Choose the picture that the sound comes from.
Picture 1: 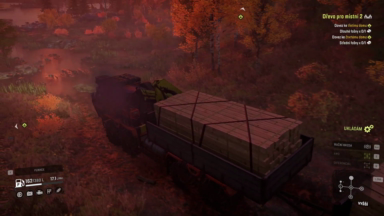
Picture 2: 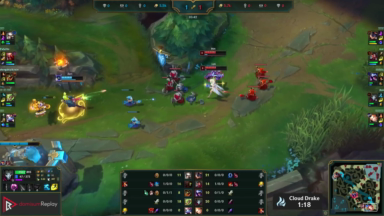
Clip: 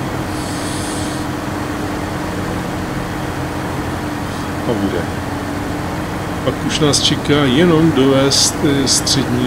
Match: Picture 1